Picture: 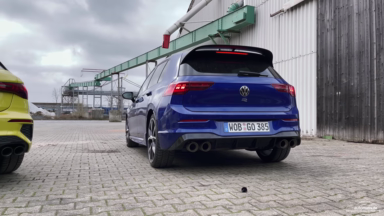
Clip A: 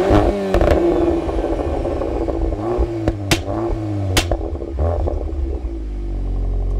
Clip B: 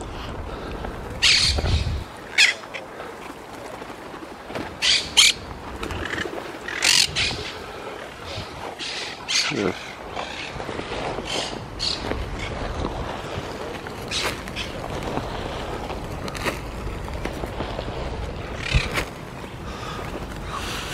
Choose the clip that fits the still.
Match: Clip A